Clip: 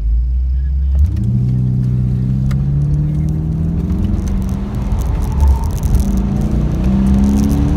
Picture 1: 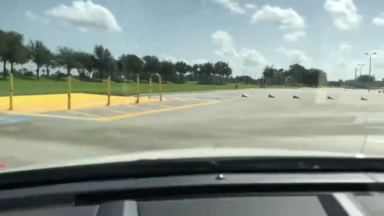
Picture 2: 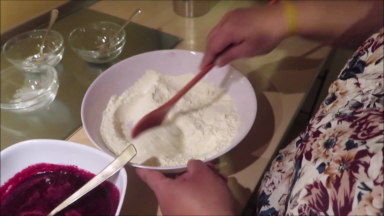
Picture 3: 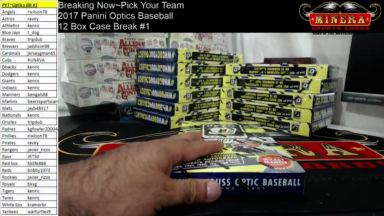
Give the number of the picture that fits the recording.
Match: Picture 1